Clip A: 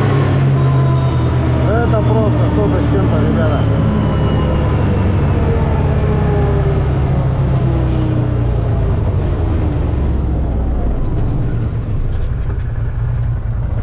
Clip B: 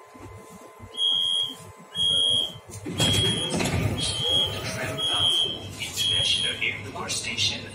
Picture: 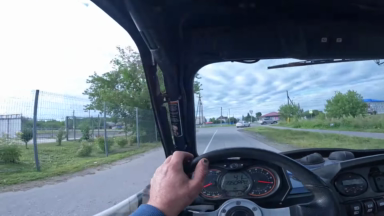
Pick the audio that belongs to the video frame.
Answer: A